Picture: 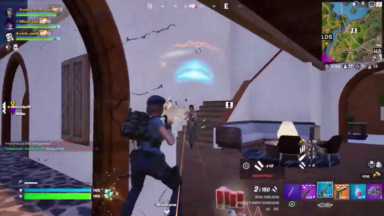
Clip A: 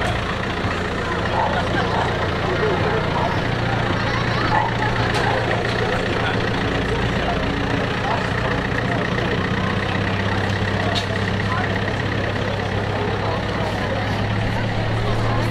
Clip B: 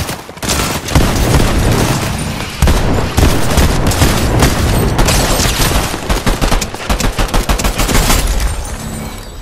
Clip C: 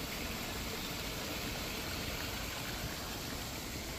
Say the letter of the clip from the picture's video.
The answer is B